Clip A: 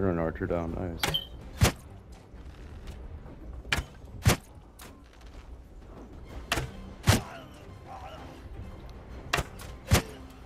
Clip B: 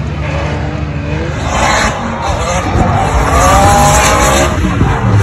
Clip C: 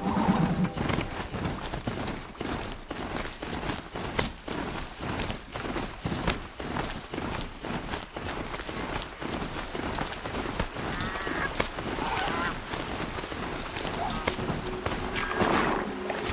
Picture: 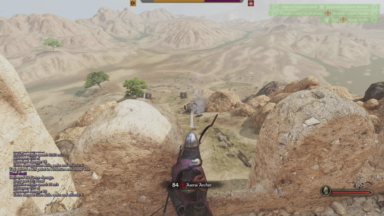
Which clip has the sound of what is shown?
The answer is A